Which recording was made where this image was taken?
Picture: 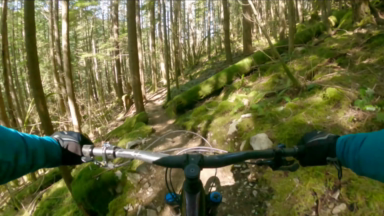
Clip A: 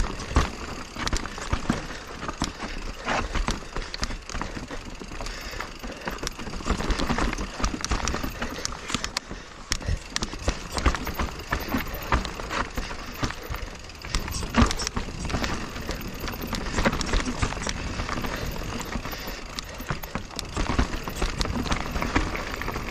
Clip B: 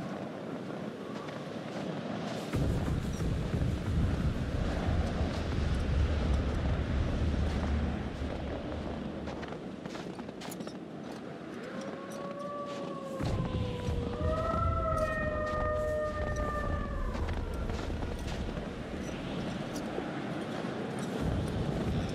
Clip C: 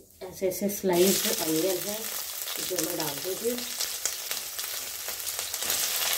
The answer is A